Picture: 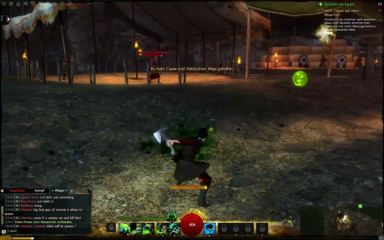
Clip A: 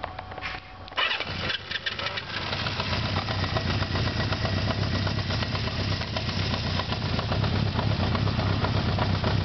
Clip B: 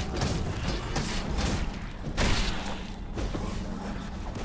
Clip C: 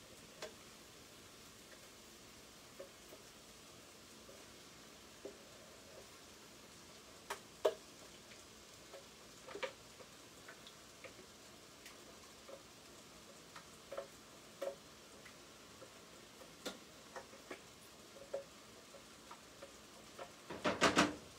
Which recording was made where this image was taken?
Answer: B